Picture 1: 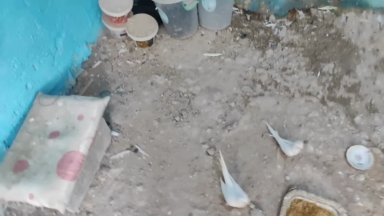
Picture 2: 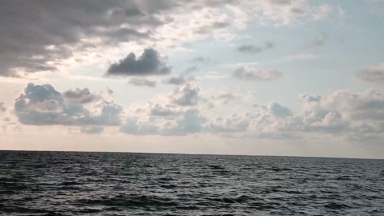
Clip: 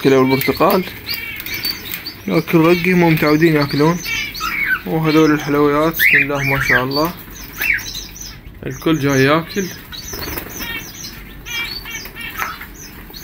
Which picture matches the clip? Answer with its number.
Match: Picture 1